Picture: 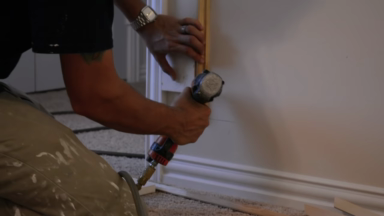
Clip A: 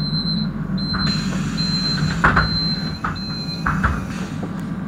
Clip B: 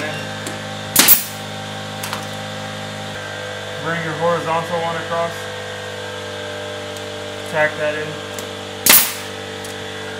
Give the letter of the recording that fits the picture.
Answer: B